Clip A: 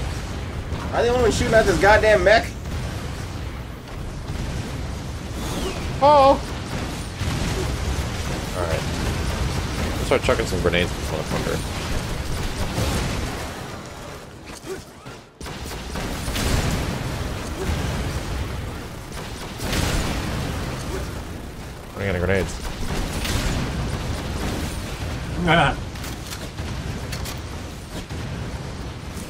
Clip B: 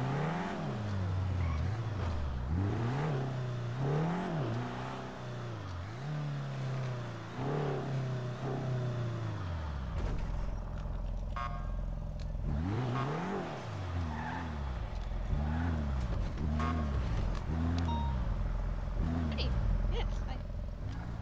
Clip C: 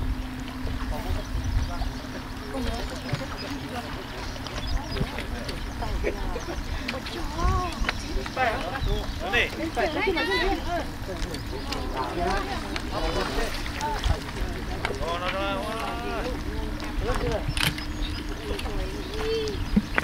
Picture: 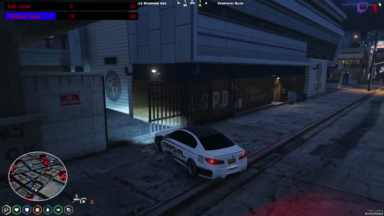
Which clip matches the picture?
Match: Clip B